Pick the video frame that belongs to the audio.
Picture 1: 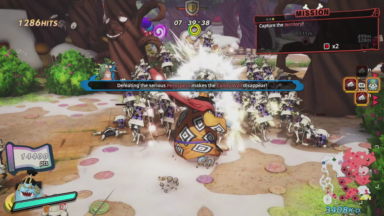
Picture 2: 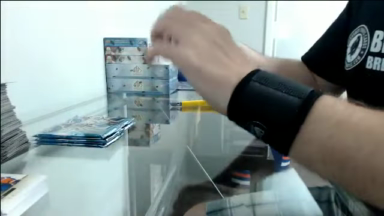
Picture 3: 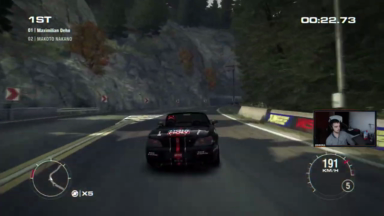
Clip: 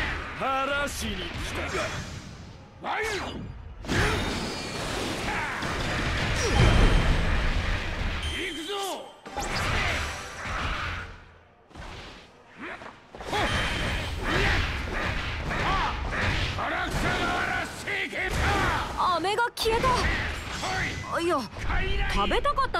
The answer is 1